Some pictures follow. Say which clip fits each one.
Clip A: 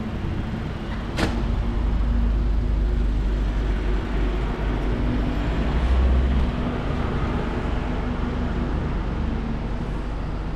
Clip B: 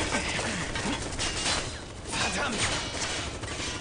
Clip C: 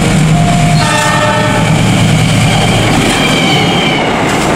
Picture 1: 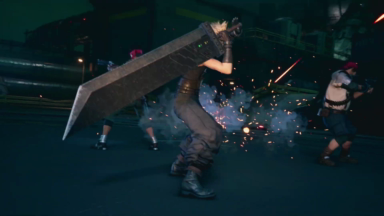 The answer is B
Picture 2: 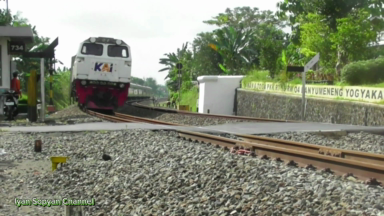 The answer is C